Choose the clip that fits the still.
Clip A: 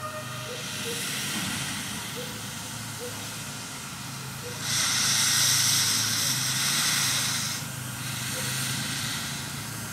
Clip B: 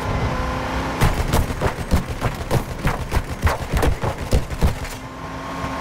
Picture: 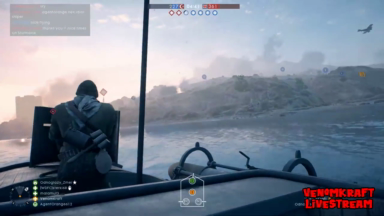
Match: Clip B